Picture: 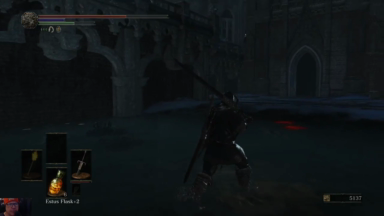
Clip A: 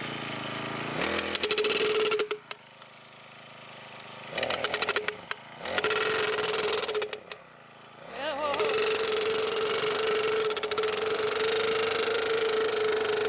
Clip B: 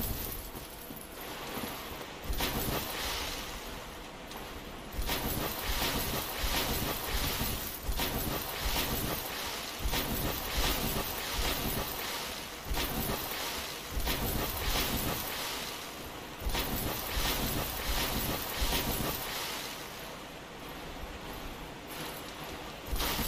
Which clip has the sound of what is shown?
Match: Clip B